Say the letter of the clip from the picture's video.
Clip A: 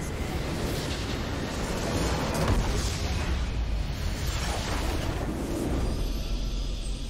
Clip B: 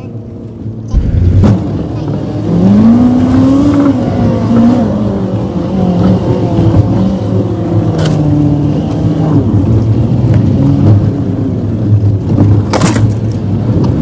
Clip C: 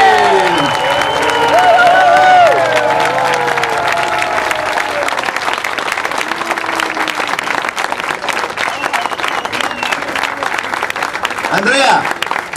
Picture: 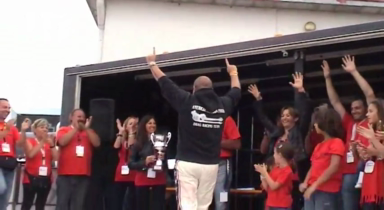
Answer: C